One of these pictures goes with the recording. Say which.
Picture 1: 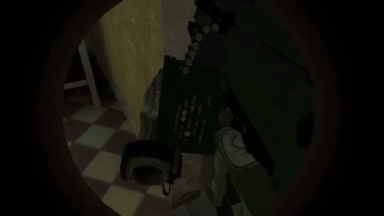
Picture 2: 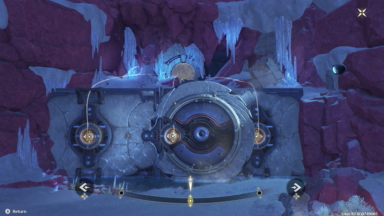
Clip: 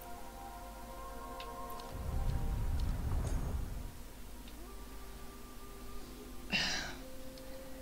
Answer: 2